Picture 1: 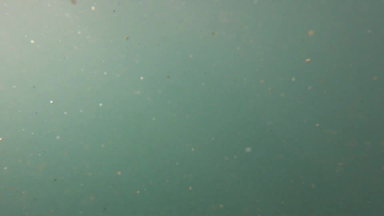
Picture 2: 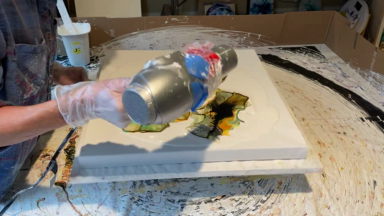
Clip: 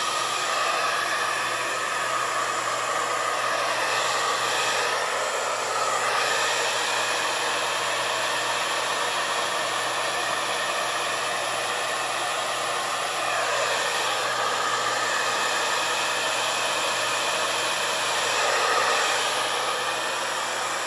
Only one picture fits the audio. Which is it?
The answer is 2